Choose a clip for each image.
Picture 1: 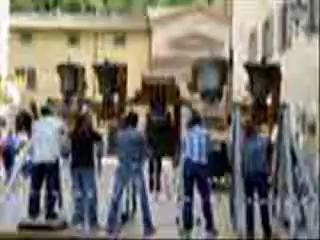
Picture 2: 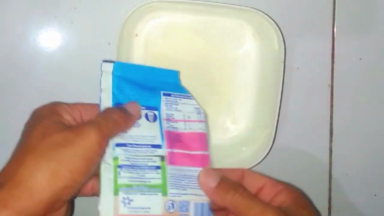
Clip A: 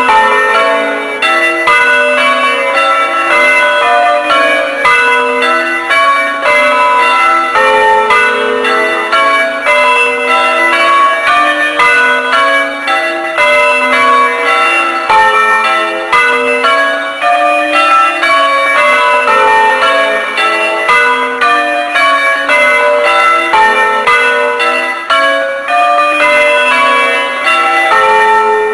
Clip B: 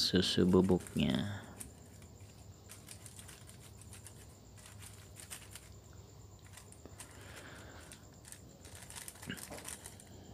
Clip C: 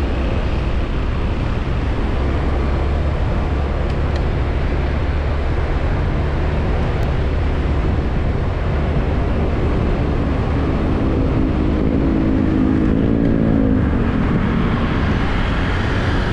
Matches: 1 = A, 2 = B